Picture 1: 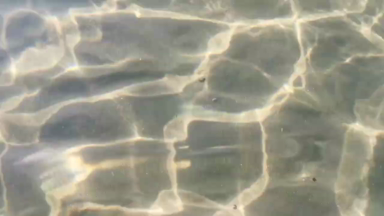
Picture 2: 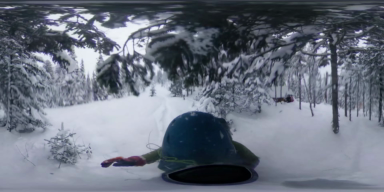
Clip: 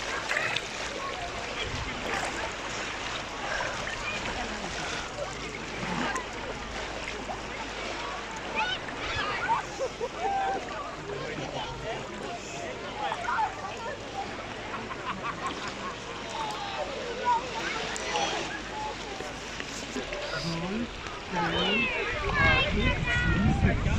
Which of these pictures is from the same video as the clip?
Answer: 1